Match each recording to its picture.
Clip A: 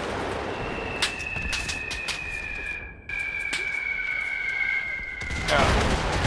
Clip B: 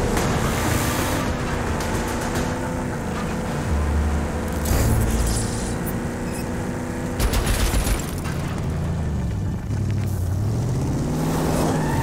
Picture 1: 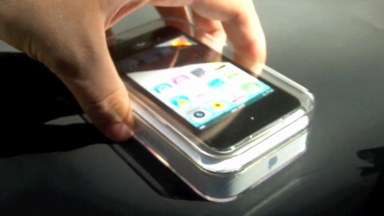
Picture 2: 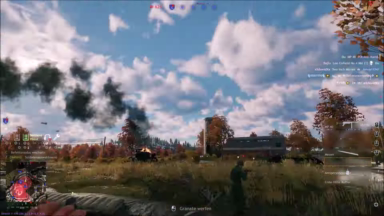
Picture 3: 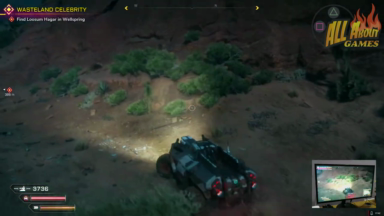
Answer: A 2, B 3